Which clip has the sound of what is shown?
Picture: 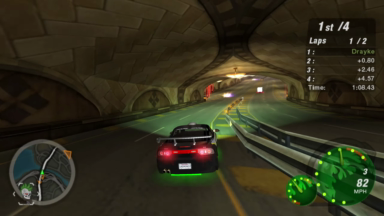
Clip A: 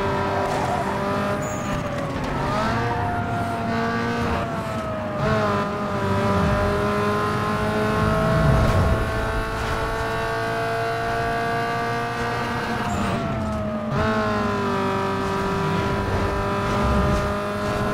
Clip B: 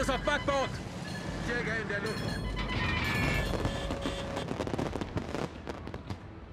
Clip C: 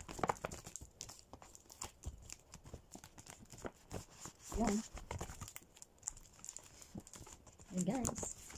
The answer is A